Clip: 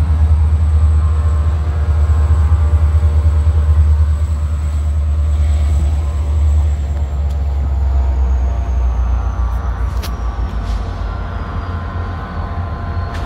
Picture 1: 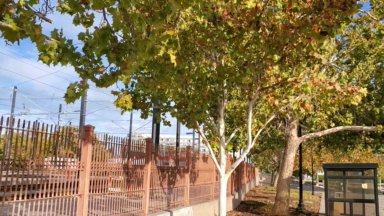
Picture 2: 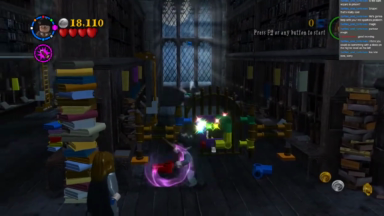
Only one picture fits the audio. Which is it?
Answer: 1